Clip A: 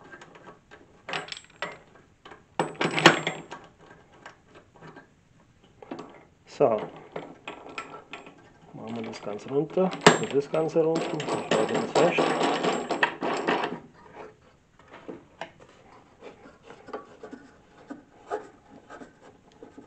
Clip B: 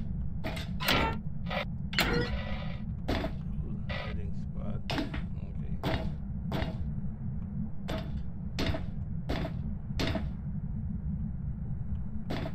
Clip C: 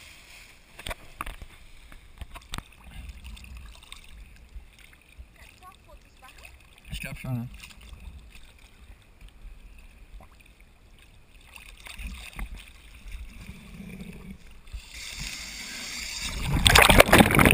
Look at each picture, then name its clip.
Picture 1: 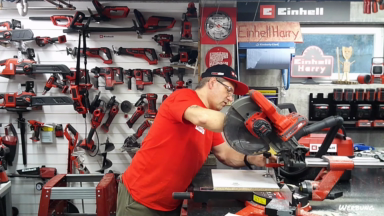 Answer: A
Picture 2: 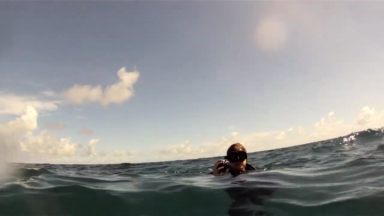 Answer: C